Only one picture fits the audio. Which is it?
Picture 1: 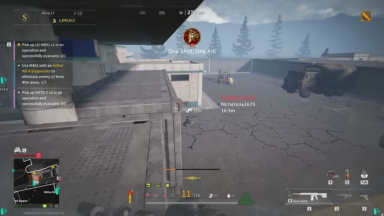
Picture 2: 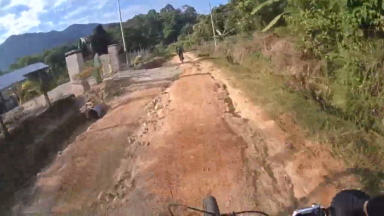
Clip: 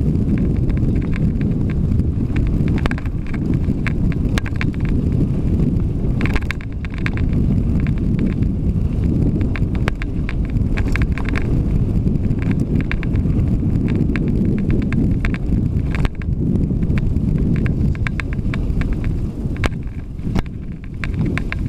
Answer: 2